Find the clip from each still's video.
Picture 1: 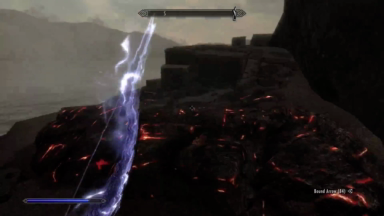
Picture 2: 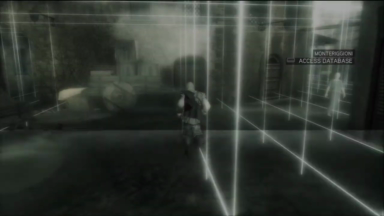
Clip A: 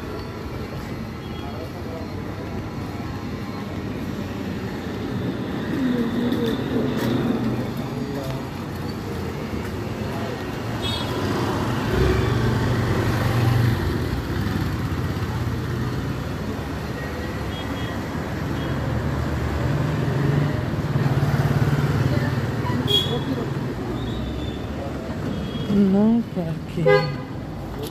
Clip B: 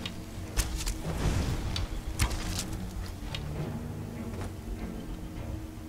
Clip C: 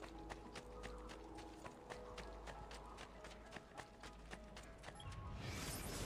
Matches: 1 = B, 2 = C